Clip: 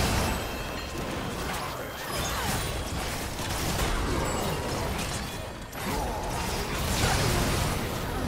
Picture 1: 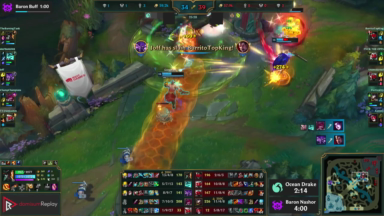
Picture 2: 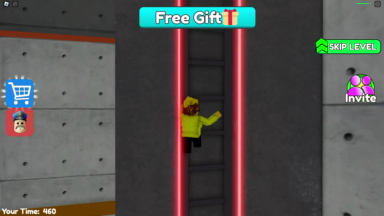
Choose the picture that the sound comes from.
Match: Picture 1